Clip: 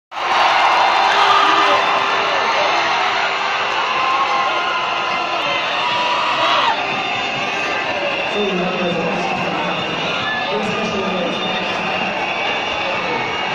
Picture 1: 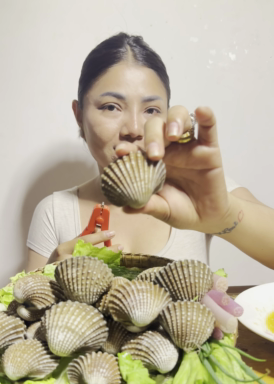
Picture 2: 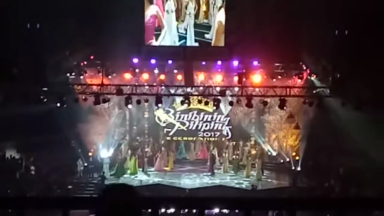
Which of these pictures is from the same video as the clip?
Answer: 2